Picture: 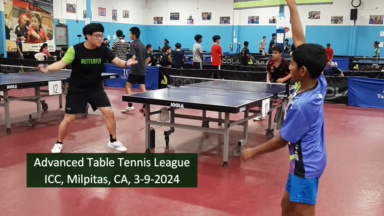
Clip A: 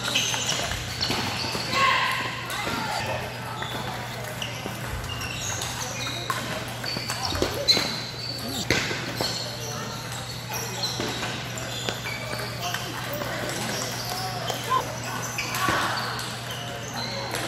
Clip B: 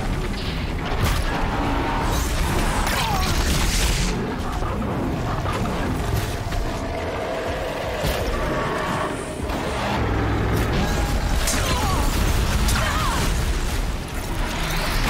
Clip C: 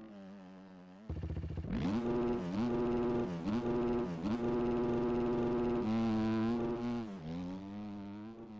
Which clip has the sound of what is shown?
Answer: A